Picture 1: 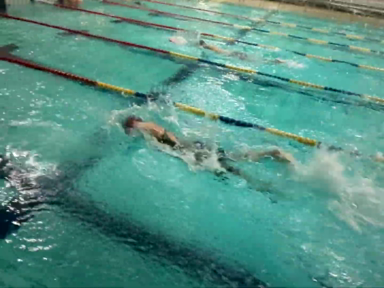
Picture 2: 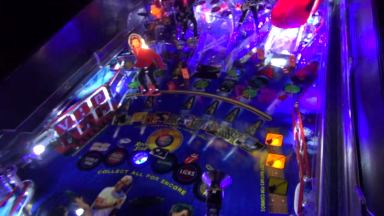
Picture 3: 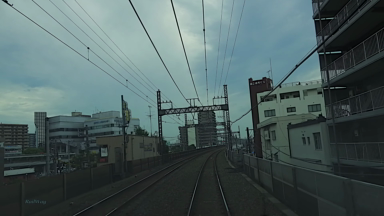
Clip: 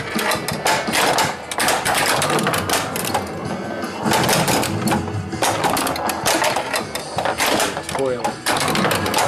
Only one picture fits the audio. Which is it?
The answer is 2